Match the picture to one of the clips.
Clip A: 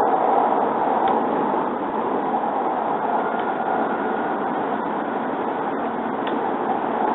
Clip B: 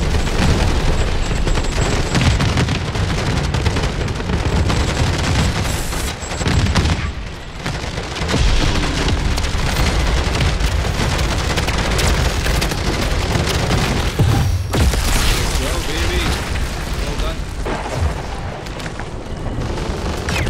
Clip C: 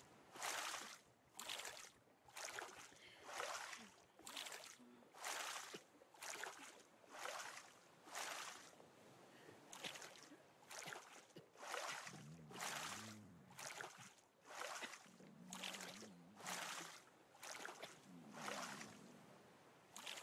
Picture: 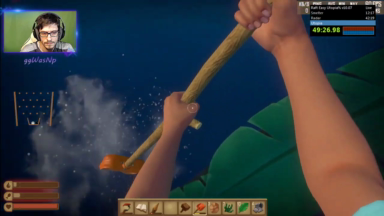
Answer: C